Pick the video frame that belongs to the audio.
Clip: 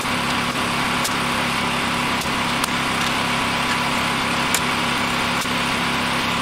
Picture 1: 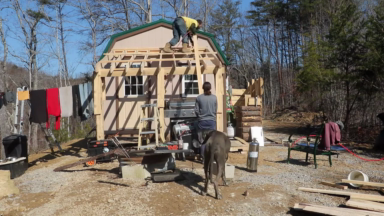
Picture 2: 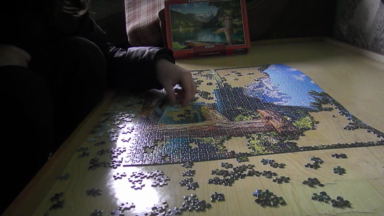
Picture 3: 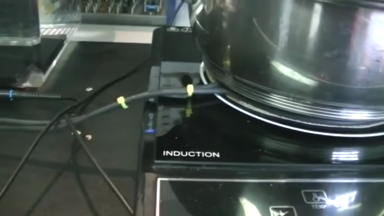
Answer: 1